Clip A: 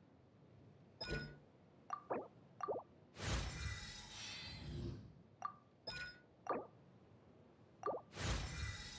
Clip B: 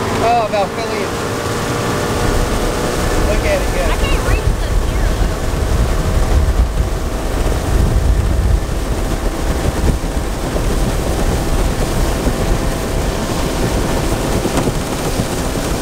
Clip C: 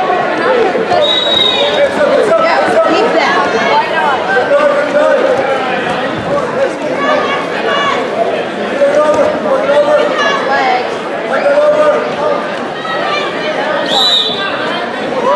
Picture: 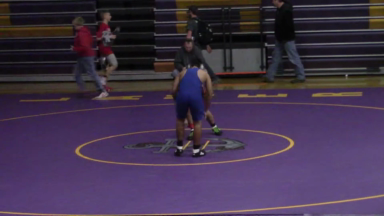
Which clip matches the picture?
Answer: C